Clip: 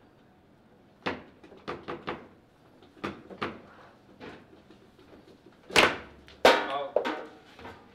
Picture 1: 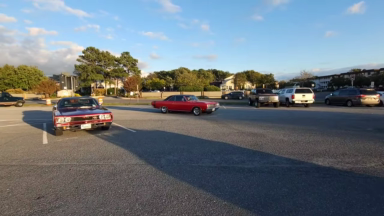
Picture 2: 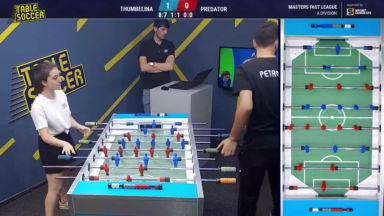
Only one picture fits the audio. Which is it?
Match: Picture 2